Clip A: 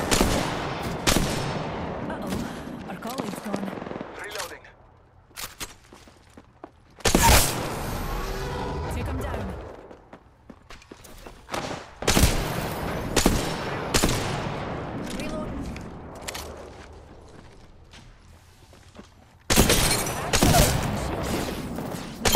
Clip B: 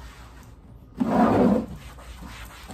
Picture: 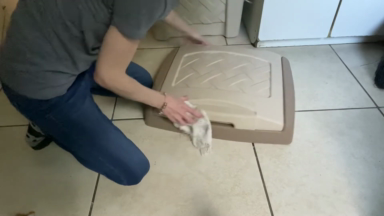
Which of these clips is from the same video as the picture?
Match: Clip B